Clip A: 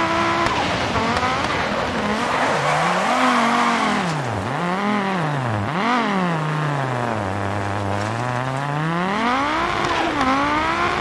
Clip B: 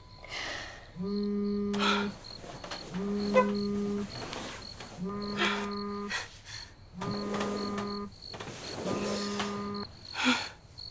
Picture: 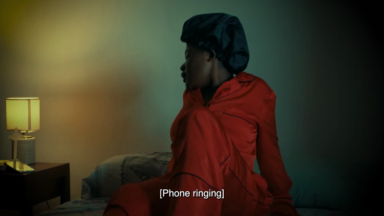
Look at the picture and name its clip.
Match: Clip B